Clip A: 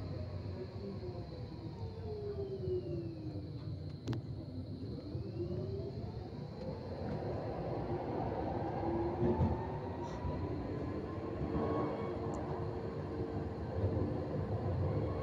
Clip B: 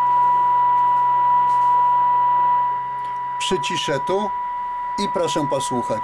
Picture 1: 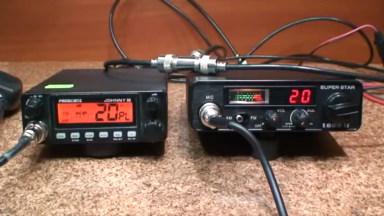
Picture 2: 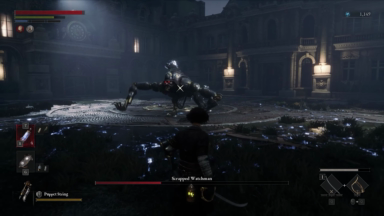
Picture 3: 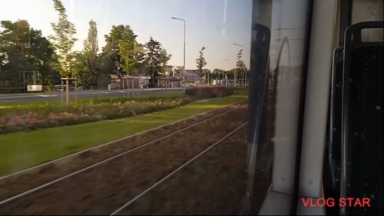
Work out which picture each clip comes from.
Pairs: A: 3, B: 1